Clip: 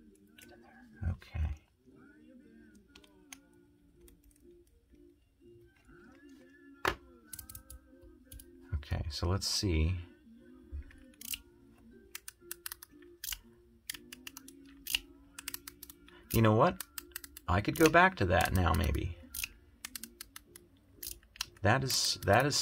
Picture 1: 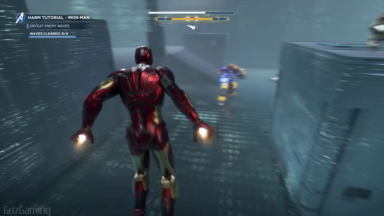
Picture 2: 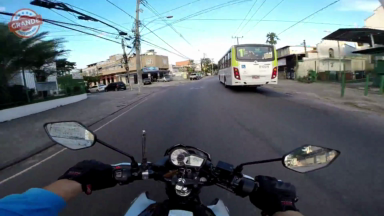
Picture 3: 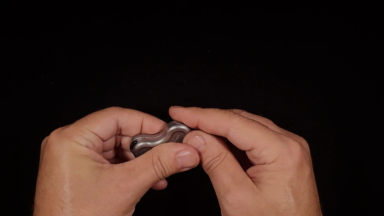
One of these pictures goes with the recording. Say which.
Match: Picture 3